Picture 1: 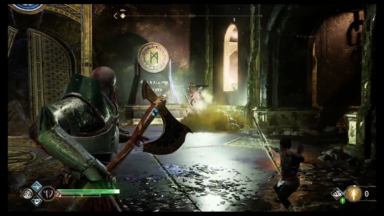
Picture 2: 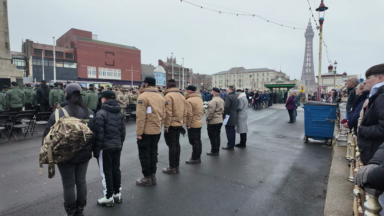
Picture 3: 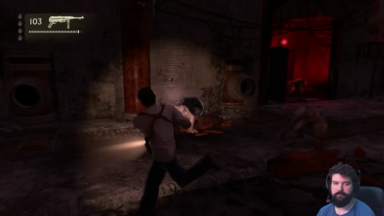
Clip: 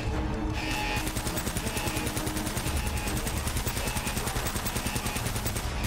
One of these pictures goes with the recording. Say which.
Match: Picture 3